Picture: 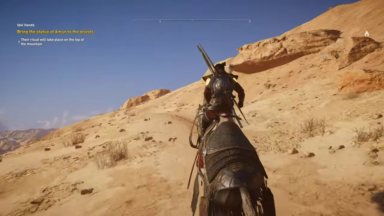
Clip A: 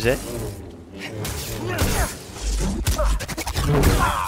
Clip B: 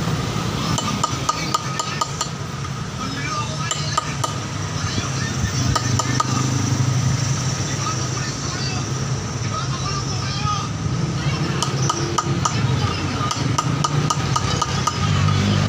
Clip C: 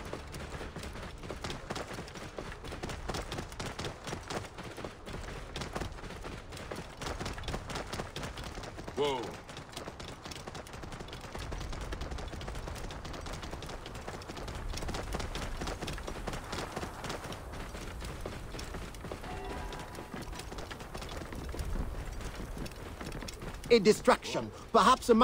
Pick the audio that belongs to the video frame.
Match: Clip C